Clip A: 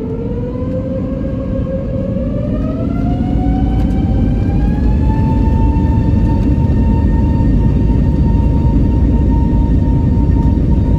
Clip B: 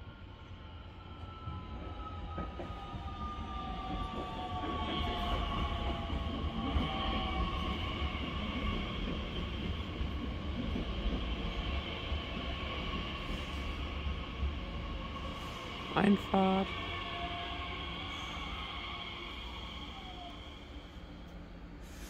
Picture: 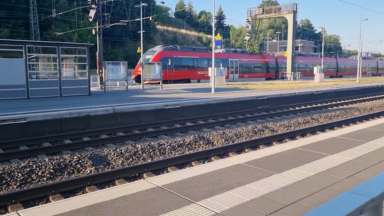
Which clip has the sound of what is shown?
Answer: B